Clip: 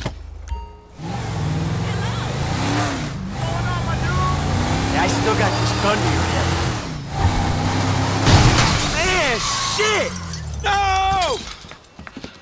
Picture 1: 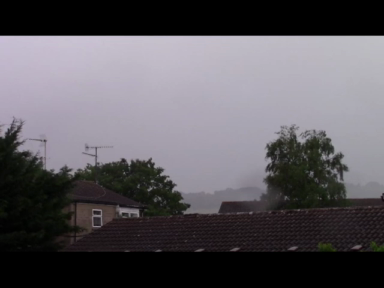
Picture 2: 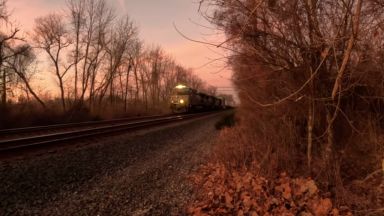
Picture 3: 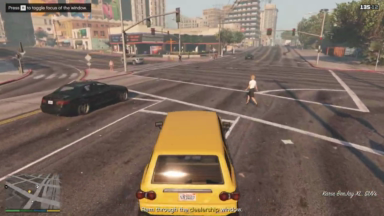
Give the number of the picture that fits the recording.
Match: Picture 3